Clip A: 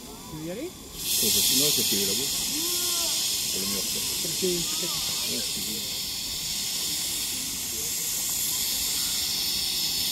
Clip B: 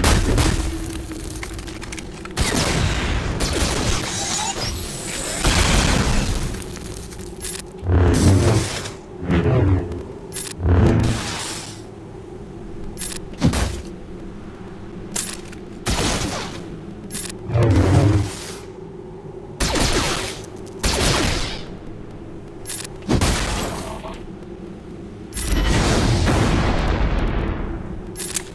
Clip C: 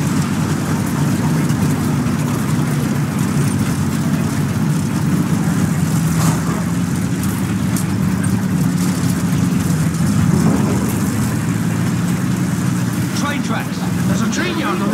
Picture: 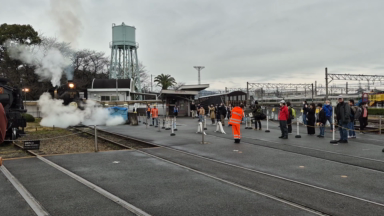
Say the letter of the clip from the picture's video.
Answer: A